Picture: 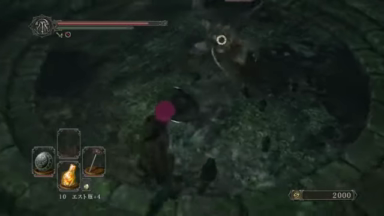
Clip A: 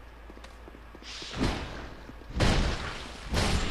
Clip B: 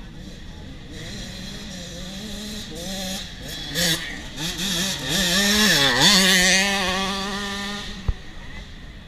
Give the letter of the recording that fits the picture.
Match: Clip A